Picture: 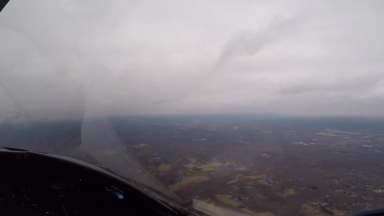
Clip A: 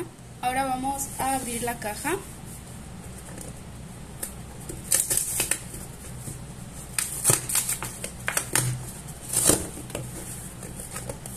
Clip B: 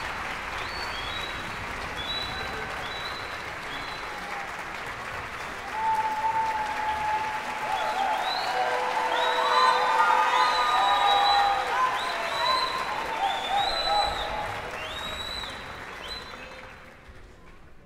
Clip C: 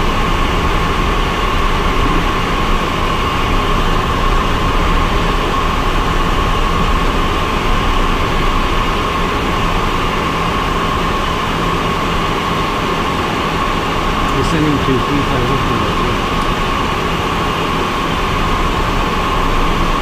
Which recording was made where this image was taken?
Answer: C